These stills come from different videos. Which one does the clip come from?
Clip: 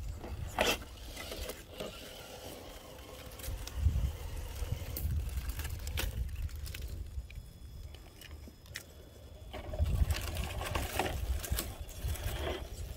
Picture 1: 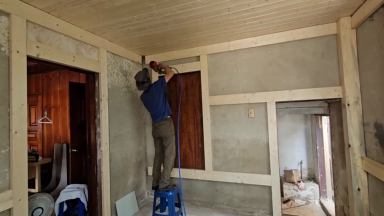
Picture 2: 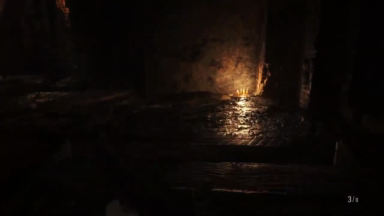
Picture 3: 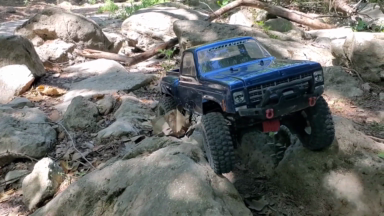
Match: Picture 3